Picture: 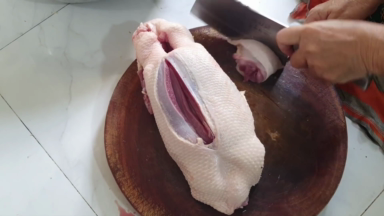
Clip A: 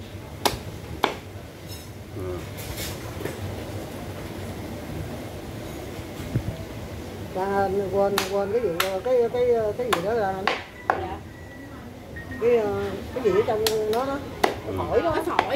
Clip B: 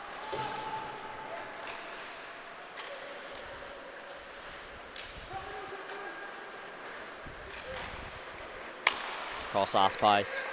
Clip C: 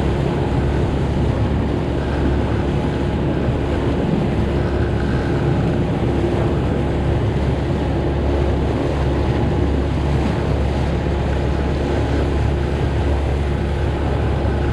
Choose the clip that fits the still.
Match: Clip A